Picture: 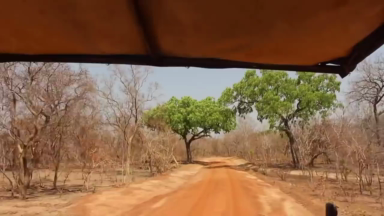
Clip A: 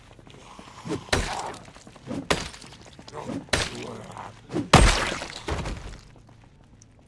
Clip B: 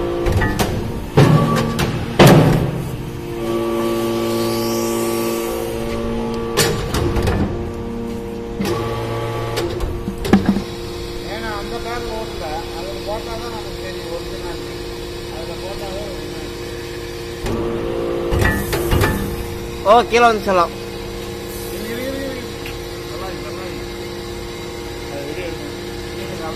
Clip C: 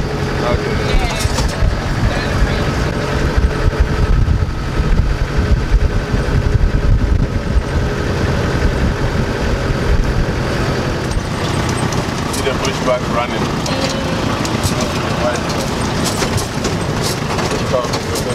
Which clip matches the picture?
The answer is C